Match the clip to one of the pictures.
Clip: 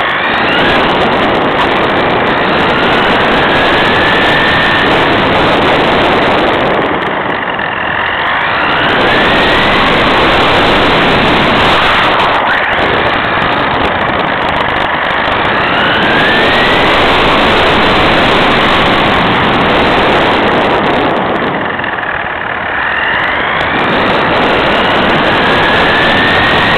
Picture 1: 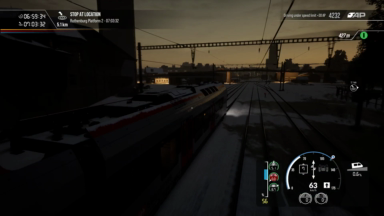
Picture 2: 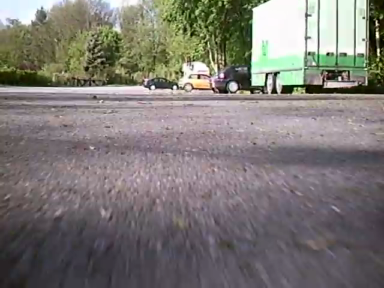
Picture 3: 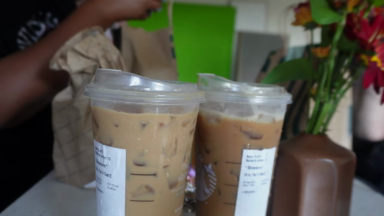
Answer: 2